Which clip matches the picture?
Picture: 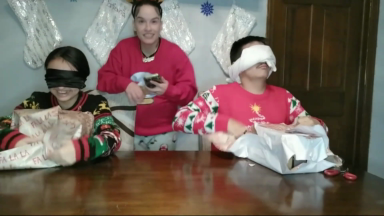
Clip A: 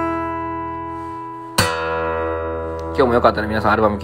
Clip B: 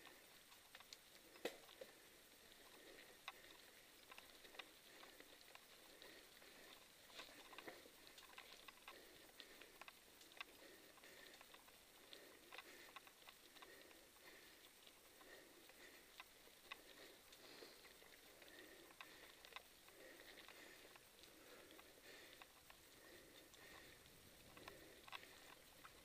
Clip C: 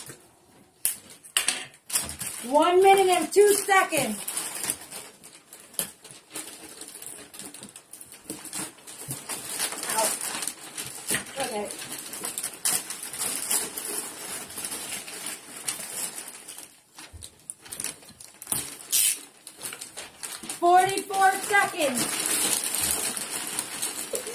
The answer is C